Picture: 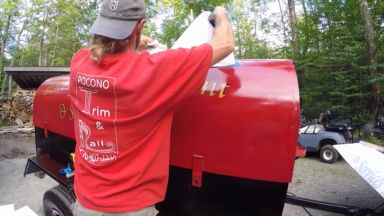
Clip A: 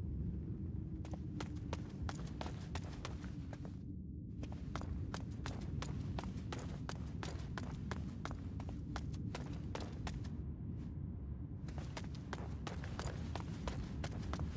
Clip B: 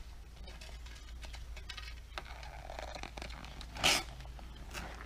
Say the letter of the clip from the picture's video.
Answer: B